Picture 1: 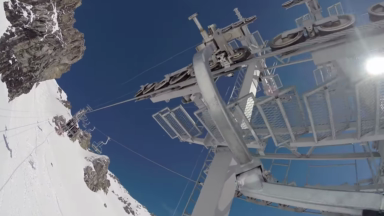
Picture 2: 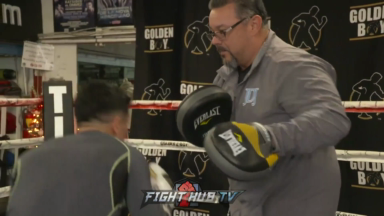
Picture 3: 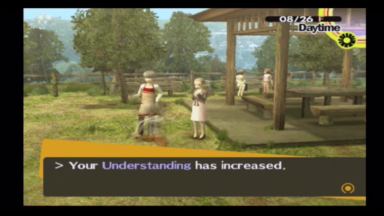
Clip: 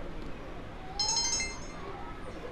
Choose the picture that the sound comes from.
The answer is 3